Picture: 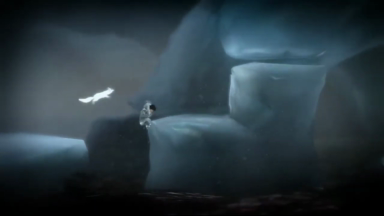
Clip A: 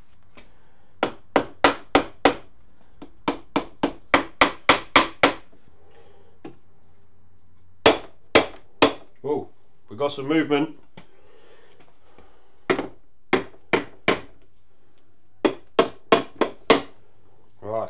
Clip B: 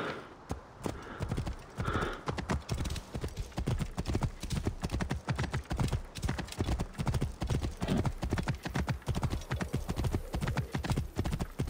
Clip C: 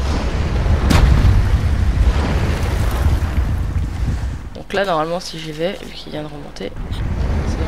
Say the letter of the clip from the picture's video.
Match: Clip C